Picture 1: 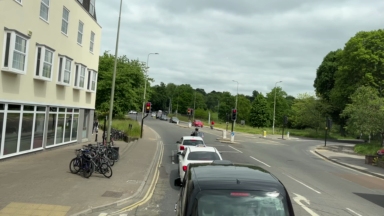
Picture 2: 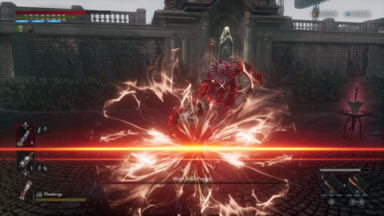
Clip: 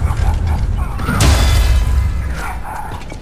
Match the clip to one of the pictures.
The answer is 2